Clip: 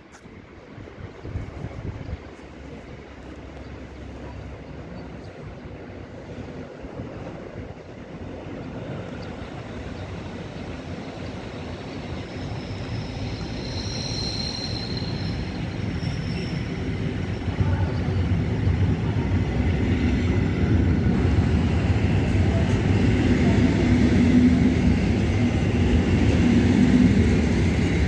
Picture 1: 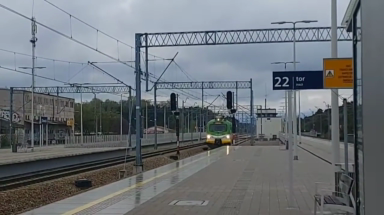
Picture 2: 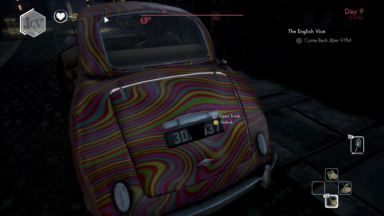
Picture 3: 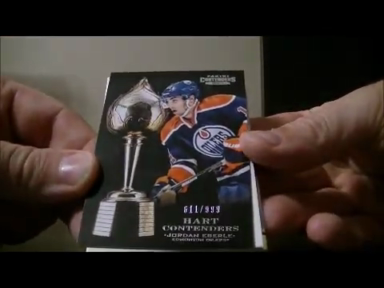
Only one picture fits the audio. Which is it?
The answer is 1